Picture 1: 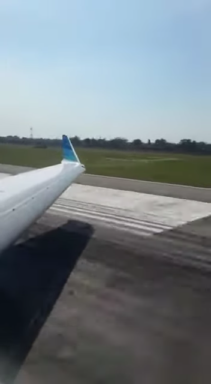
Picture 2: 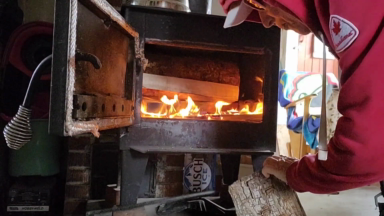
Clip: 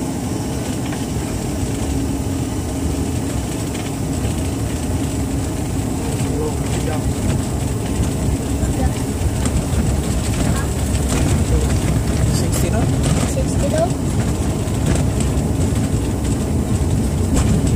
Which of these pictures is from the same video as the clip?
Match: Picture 1